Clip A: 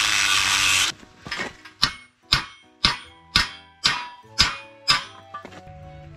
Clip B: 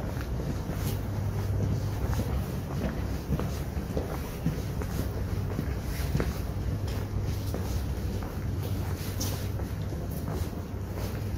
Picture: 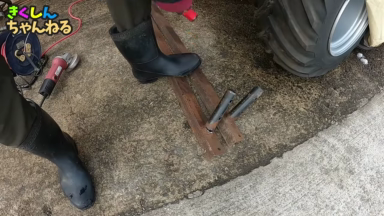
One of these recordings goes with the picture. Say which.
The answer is A